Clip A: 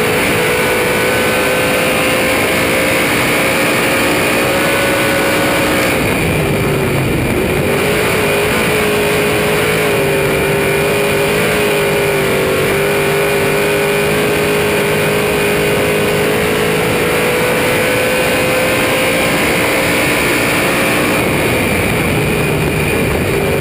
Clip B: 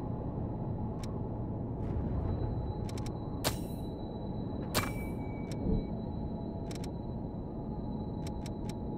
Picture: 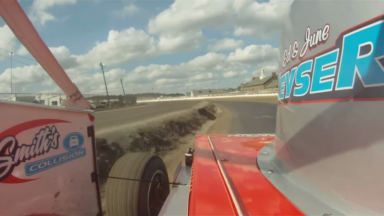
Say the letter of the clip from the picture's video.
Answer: A